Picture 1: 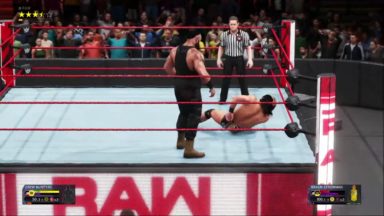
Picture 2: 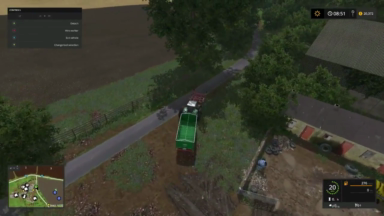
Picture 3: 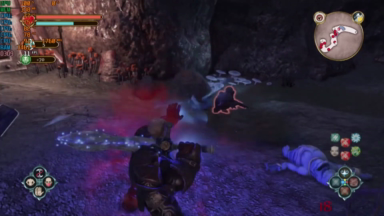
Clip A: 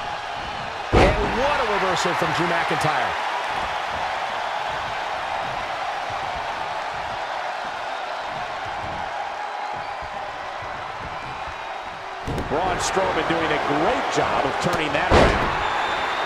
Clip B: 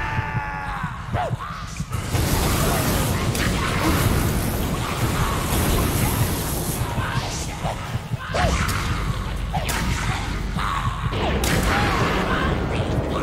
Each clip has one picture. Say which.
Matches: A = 1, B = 3